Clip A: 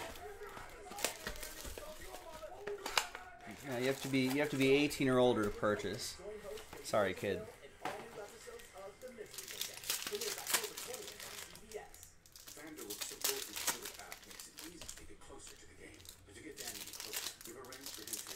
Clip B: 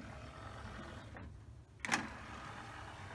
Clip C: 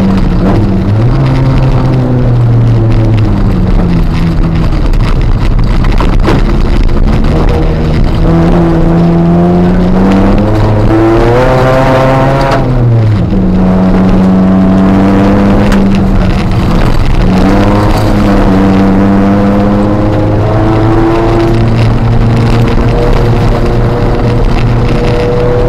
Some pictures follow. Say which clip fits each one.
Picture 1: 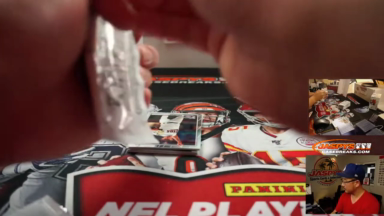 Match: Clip A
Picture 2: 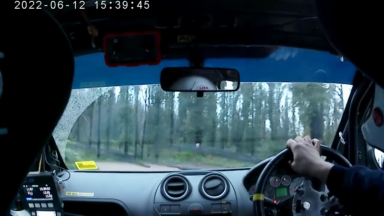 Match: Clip C